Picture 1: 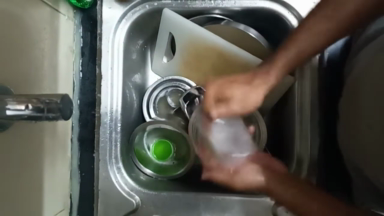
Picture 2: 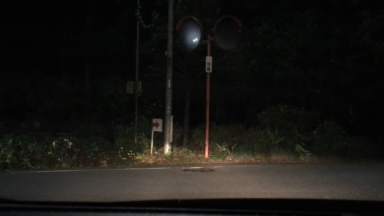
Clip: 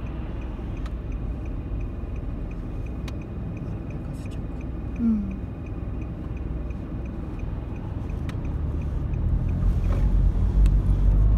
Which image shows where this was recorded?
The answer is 2